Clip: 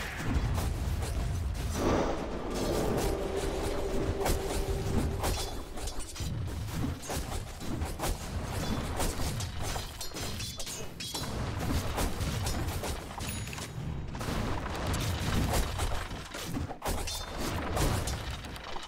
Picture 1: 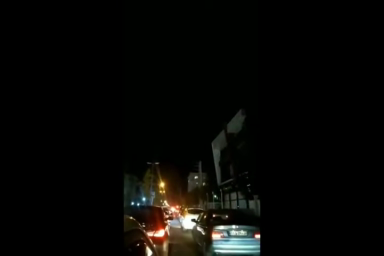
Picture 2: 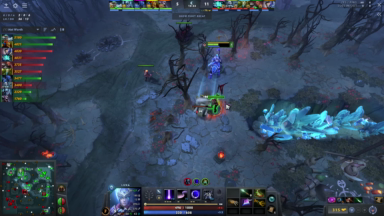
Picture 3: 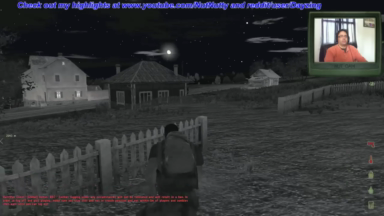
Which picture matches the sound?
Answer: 2